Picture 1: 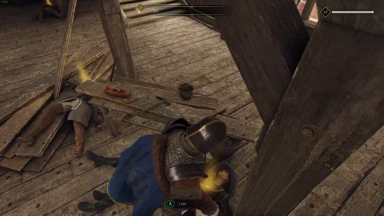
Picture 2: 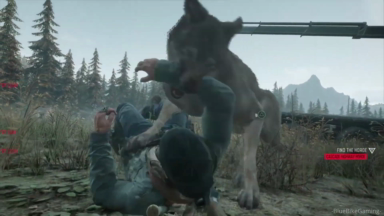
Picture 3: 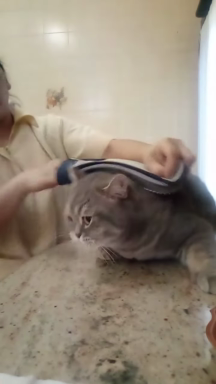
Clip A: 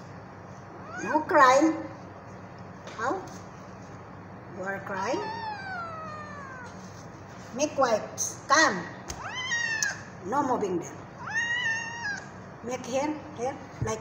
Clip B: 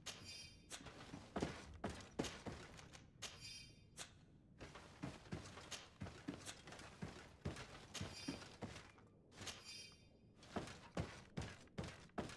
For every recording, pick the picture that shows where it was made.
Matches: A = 3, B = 1